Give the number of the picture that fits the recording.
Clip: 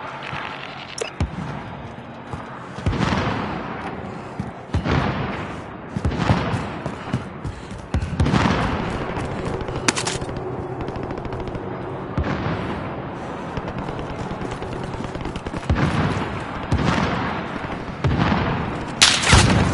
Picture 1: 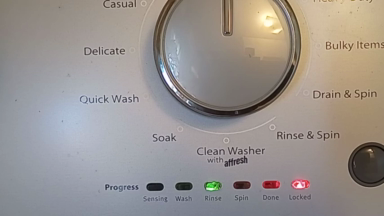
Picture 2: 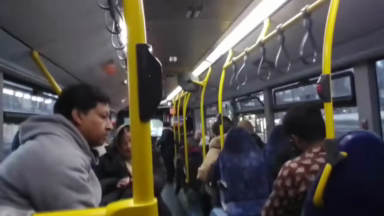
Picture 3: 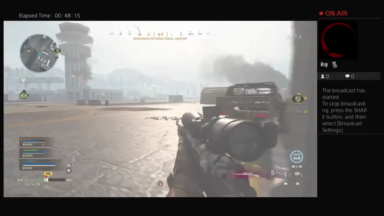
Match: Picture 3